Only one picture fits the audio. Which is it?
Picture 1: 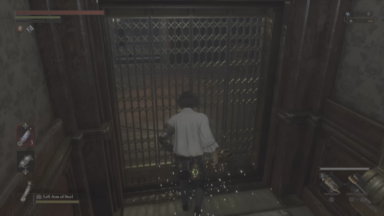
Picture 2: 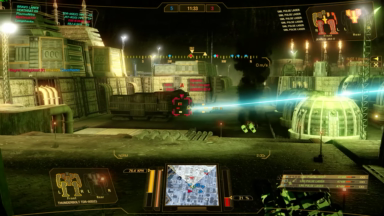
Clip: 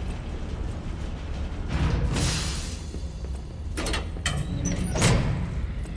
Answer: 1